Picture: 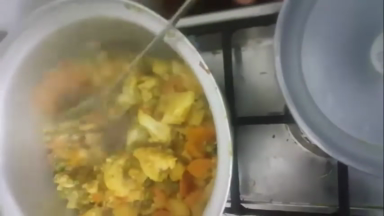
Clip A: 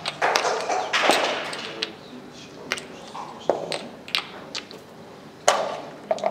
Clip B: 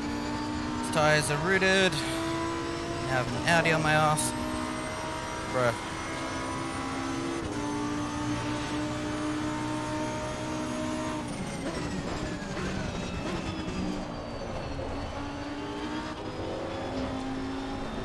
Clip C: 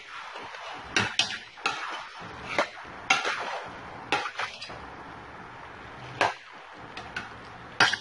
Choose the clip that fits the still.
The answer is C